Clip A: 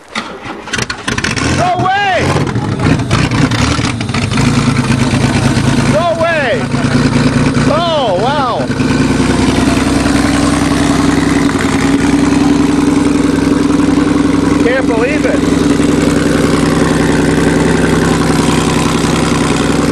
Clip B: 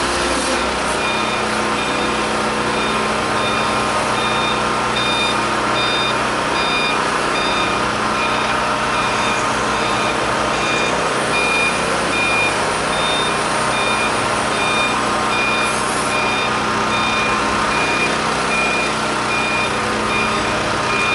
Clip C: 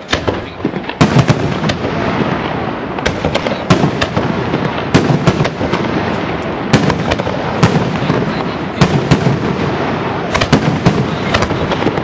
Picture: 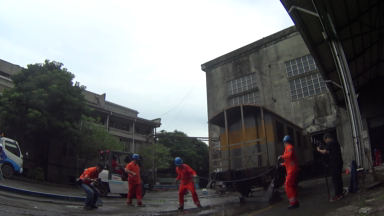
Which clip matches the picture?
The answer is B